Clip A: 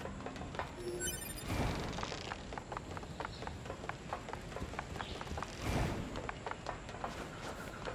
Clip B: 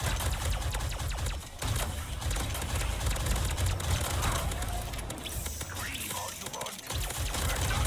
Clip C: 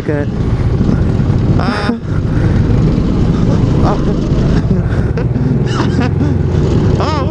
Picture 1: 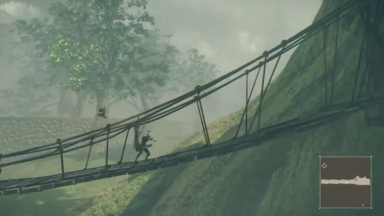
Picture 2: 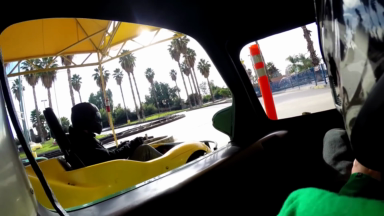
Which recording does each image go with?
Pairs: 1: A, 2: C